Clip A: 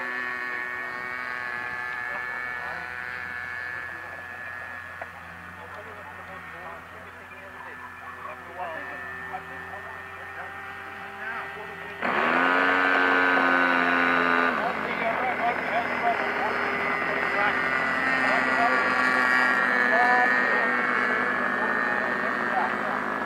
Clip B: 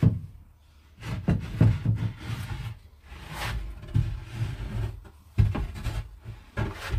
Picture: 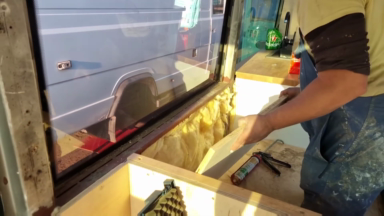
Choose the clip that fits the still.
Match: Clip B